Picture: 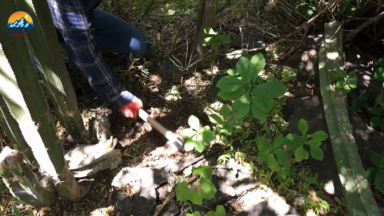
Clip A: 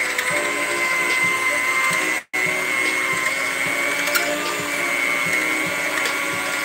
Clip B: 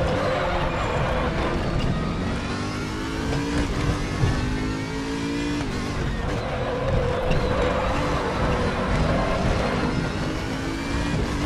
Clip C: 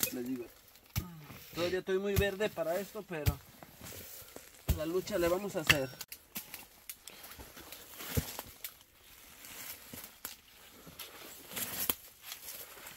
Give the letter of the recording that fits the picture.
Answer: C